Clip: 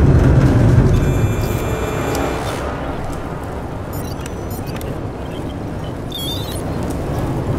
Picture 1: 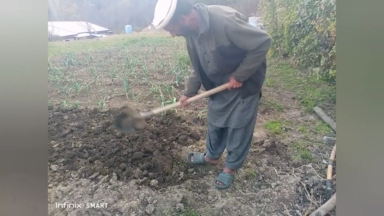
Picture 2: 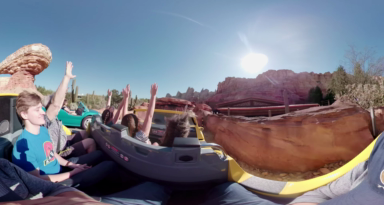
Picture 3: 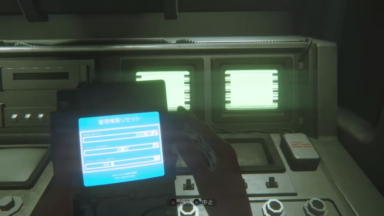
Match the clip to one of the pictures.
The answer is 3